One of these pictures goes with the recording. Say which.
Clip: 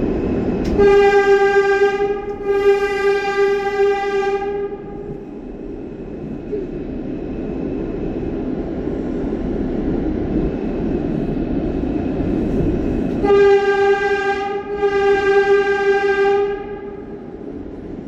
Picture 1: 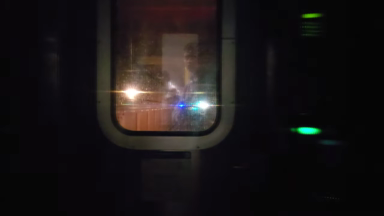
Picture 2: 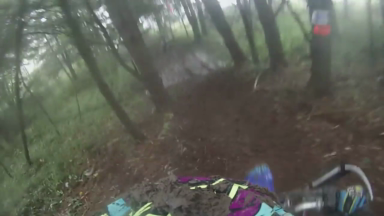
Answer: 1